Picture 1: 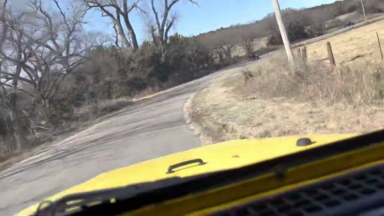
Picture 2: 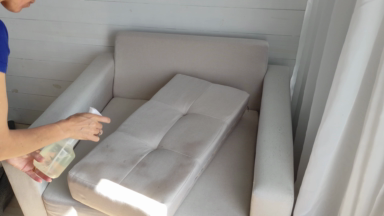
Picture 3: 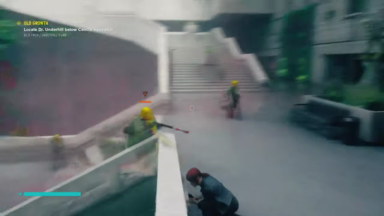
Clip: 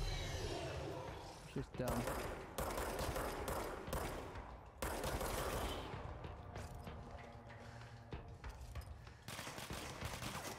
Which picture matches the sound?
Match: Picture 3